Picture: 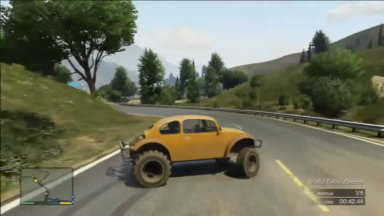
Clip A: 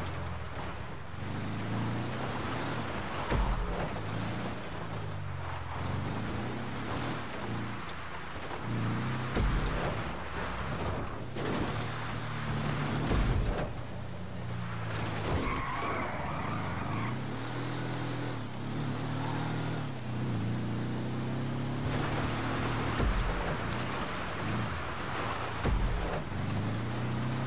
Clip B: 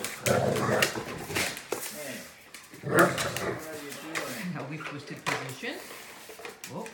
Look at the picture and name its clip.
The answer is A